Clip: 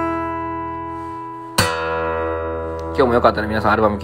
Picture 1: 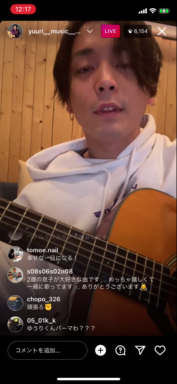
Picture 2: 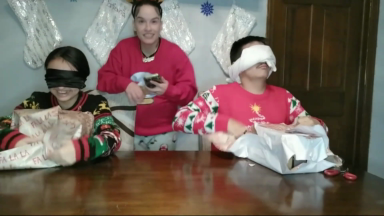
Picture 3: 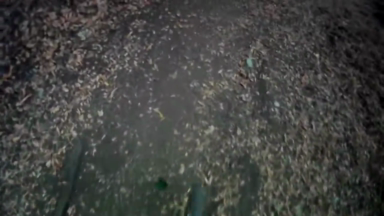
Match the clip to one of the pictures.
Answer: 1